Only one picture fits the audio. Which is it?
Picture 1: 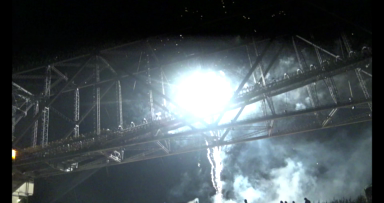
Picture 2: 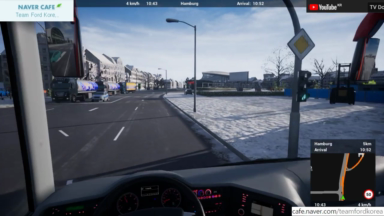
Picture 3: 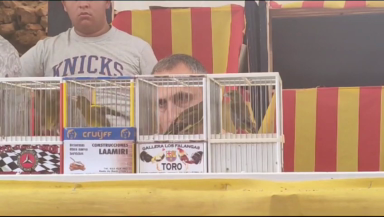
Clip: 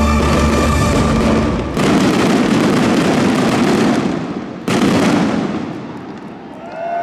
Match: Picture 1